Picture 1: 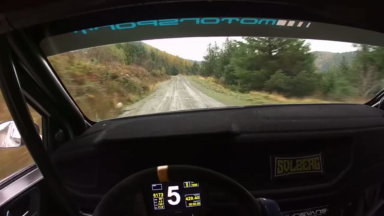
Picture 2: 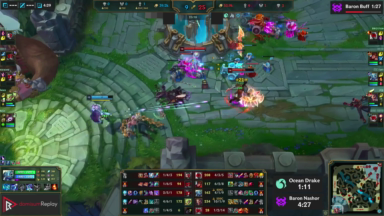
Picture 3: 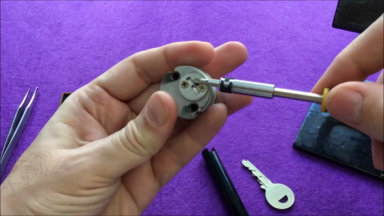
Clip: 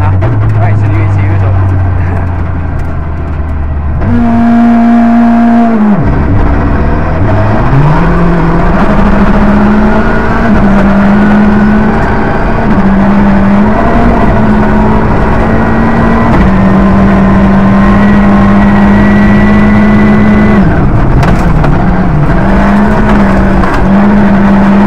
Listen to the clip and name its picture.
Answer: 1